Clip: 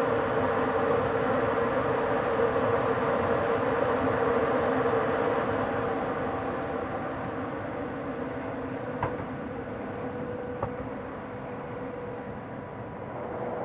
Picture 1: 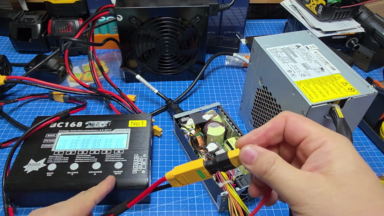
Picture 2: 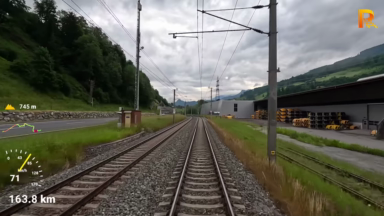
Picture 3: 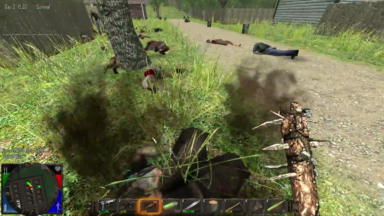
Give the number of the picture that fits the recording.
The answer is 2